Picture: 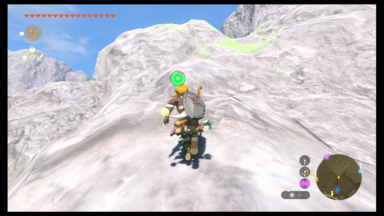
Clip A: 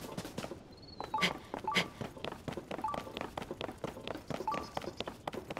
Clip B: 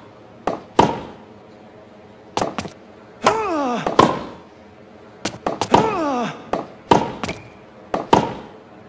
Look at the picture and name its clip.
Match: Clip A